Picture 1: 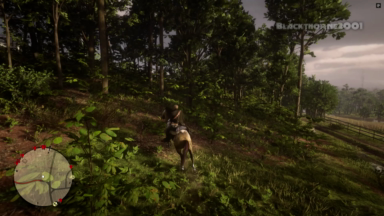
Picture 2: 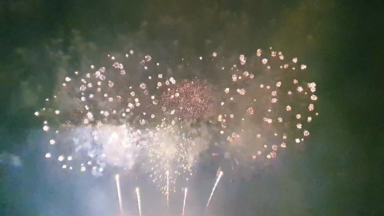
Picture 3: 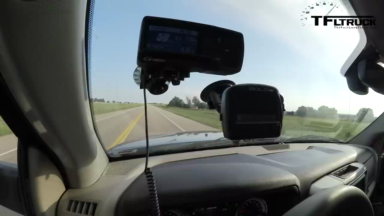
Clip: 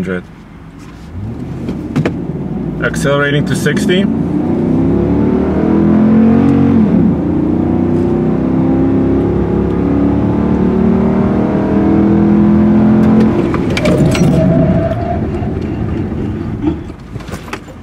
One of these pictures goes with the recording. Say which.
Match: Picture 3